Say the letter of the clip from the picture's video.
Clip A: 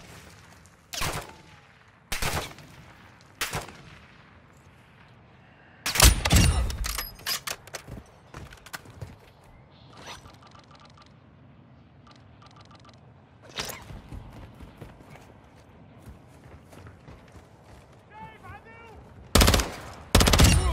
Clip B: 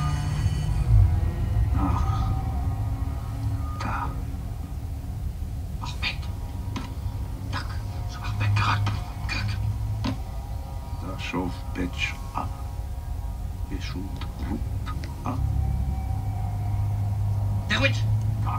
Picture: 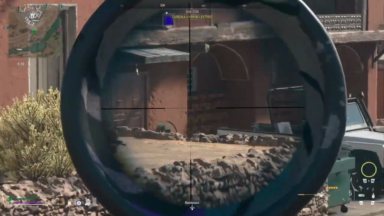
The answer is A